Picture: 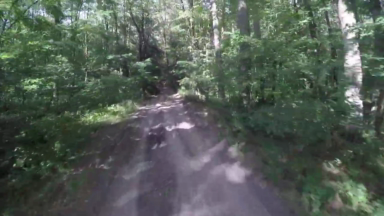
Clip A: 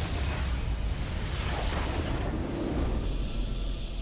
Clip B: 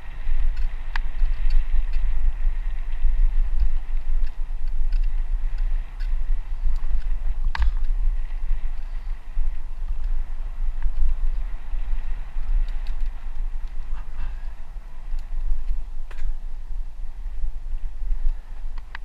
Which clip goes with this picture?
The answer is B